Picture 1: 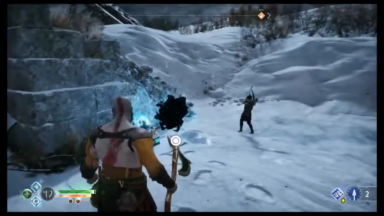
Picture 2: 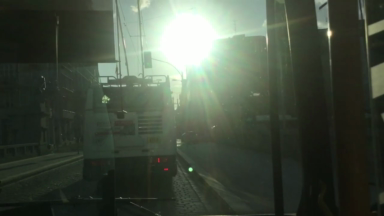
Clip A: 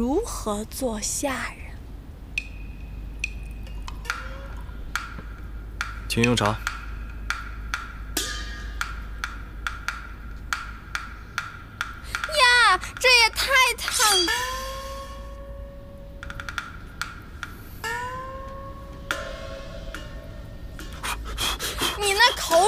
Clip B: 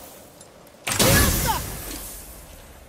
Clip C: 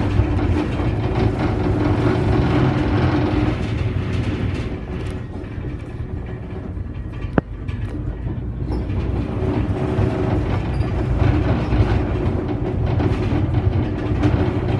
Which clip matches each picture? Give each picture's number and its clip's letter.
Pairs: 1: B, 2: C